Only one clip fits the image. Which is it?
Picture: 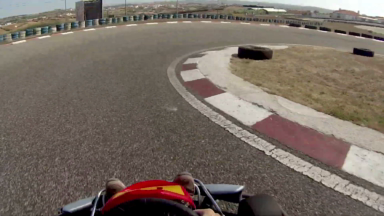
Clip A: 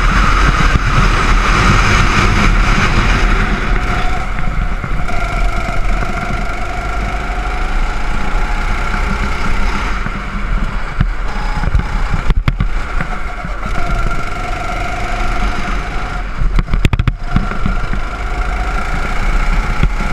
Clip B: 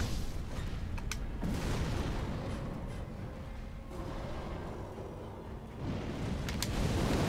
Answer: A